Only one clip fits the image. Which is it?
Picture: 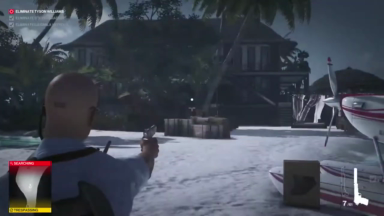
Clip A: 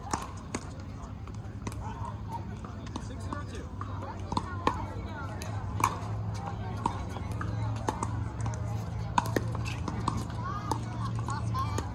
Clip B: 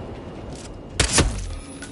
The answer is B